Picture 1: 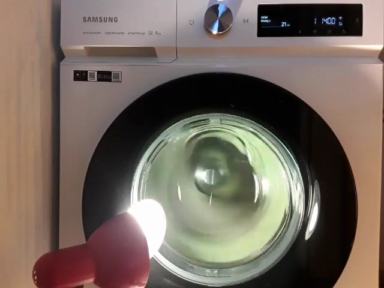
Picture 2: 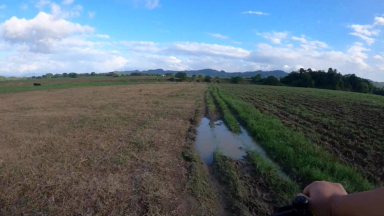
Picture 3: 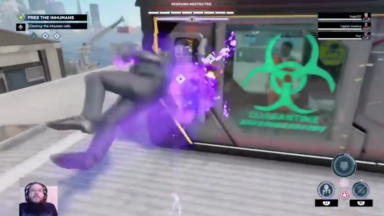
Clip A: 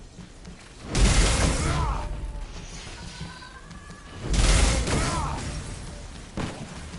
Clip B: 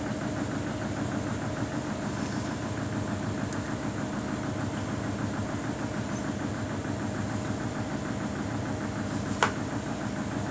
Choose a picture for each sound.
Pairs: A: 3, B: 1